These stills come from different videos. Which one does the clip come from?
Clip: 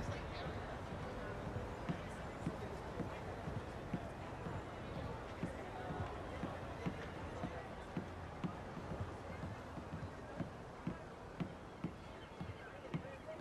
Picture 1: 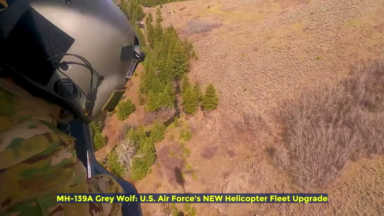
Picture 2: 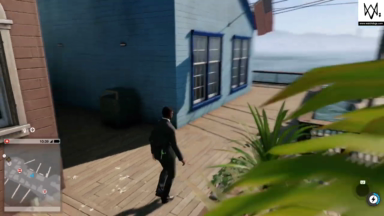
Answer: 2